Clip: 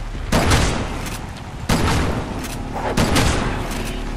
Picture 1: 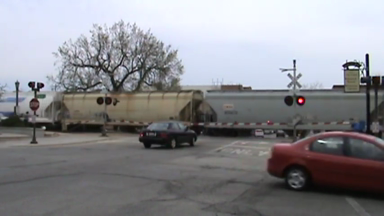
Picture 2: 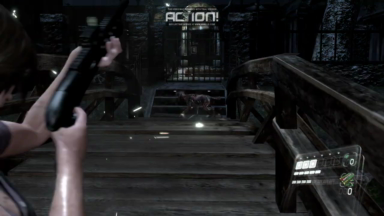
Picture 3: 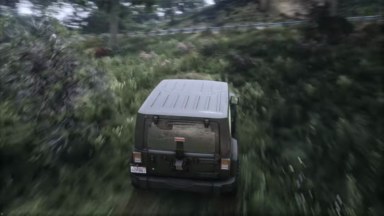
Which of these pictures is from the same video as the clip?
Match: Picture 2